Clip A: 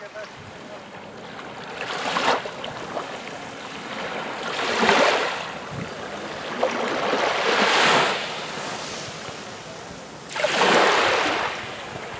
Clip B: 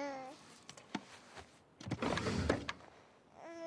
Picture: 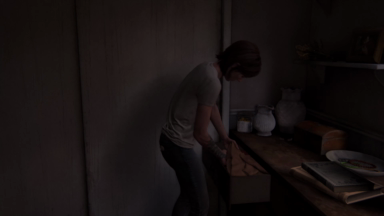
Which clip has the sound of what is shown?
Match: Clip B